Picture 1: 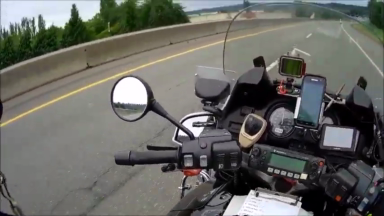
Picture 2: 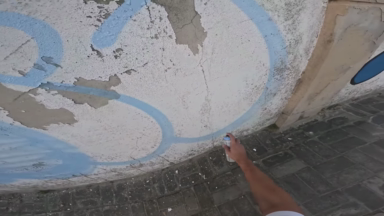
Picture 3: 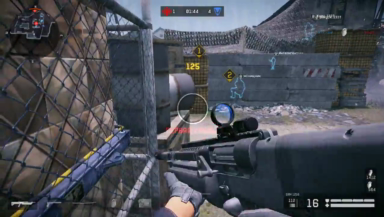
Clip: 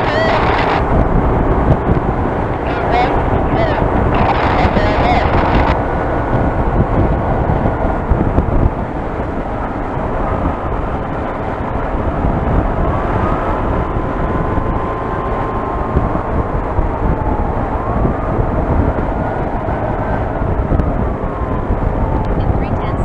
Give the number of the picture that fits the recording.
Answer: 1